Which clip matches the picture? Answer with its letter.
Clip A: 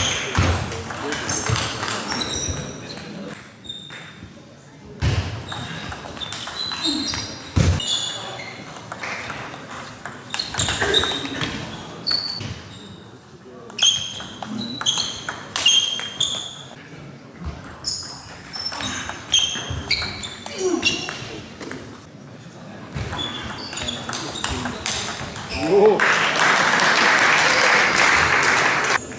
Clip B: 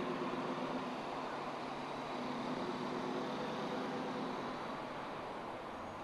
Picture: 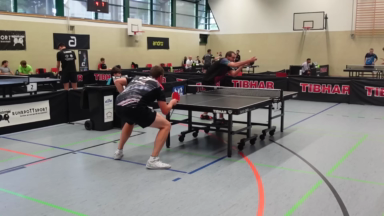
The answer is A